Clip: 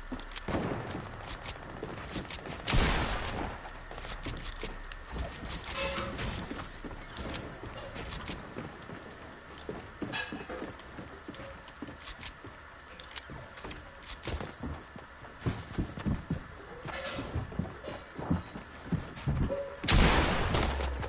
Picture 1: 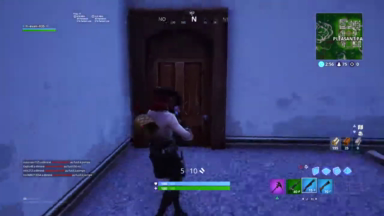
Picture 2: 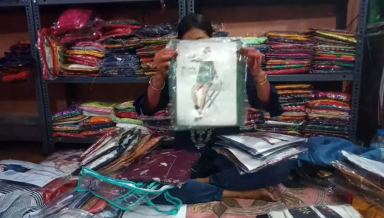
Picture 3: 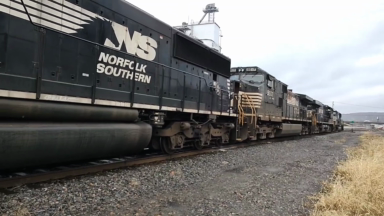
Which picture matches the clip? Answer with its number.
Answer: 1